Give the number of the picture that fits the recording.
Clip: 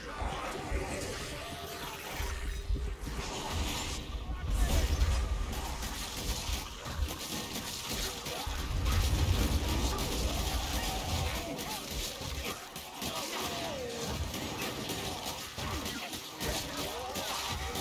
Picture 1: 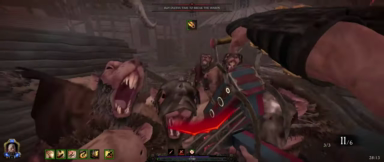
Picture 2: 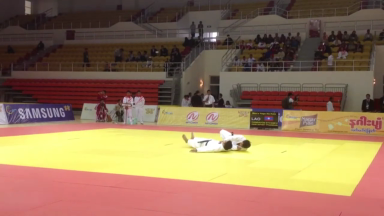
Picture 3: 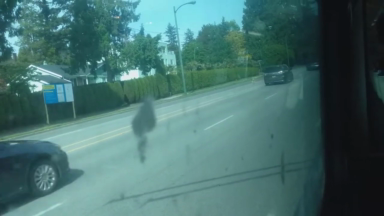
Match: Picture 1